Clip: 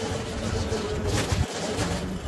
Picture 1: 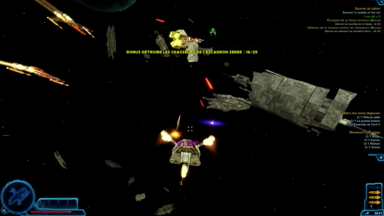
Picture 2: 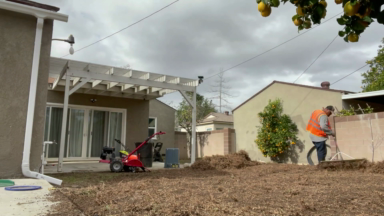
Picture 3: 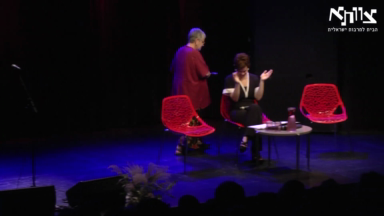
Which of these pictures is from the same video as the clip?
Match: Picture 2